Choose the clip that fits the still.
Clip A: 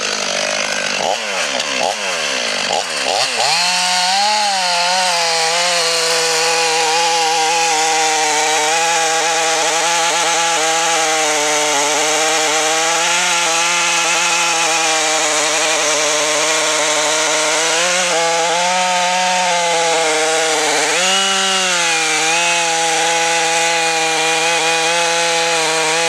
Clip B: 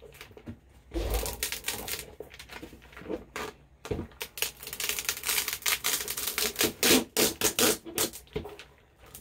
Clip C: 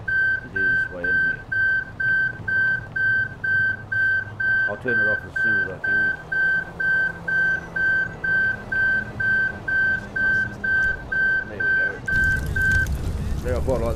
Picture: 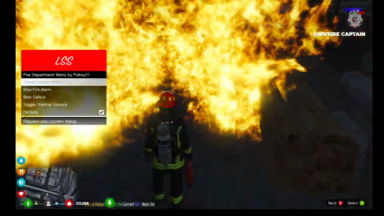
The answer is C